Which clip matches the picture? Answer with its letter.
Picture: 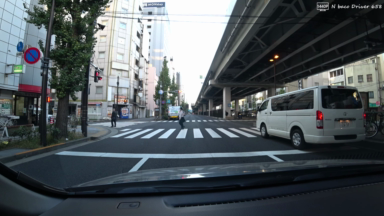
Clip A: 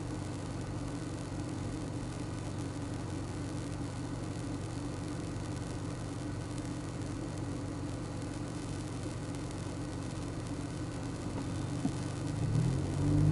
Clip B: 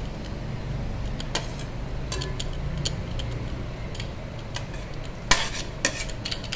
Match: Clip A